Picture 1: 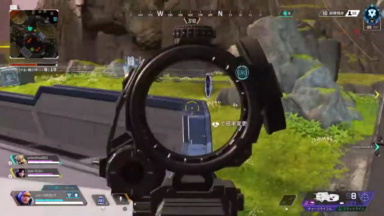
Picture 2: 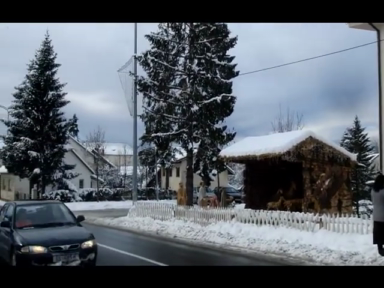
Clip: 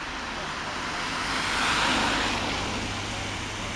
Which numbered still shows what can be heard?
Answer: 2